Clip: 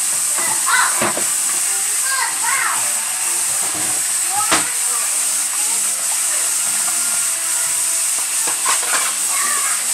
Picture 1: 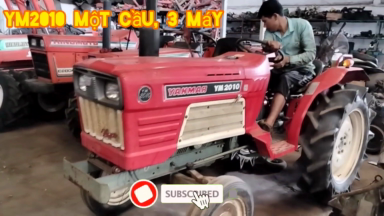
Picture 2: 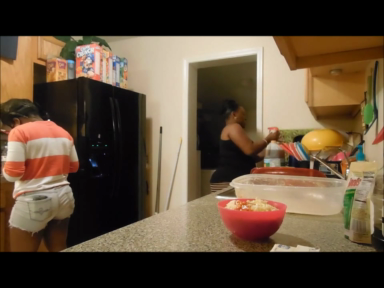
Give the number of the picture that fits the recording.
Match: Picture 2